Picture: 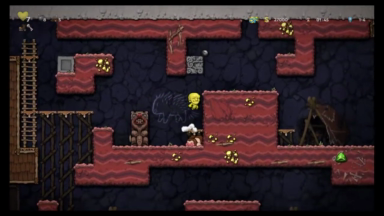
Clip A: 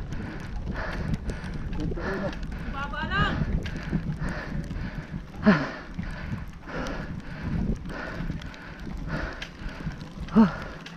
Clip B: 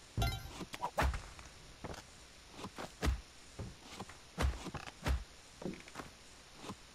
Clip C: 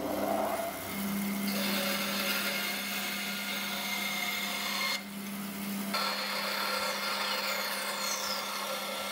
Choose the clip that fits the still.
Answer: B